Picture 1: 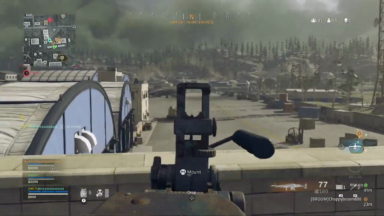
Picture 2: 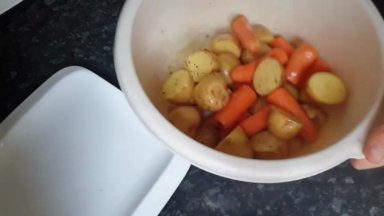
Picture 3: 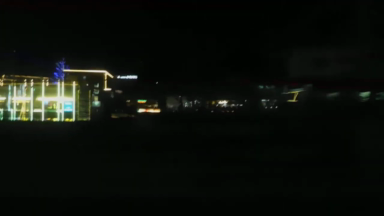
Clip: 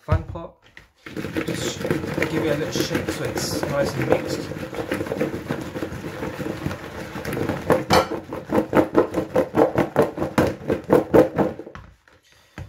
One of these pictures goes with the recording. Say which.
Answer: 2